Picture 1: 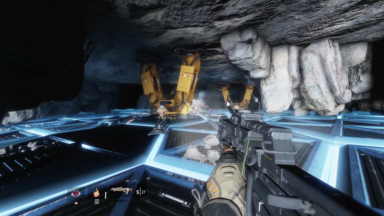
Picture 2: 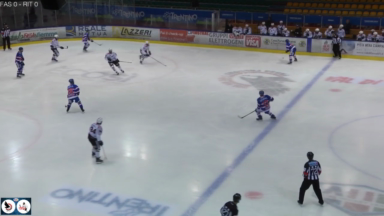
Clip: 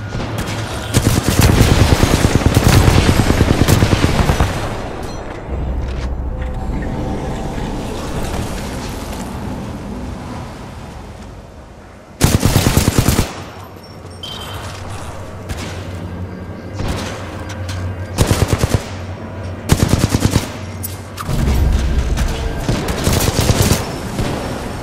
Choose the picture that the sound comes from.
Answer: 1